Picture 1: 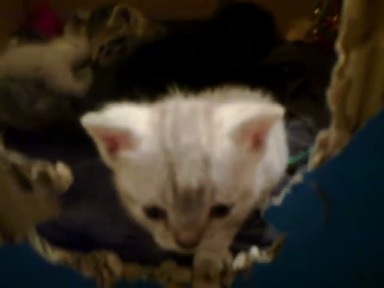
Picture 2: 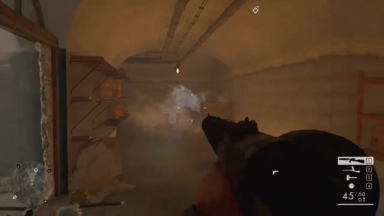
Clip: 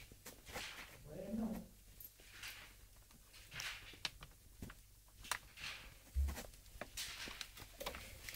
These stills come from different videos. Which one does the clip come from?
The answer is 1